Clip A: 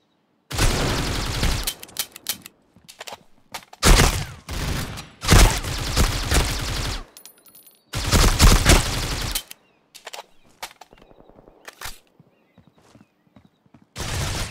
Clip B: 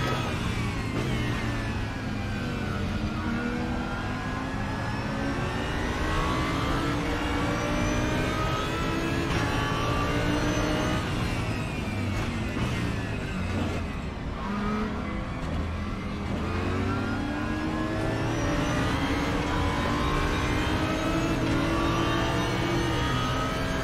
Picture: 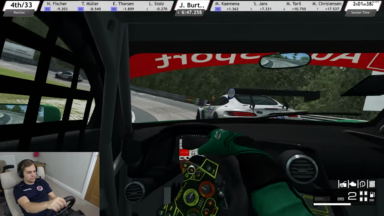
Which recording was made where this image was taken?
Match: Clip B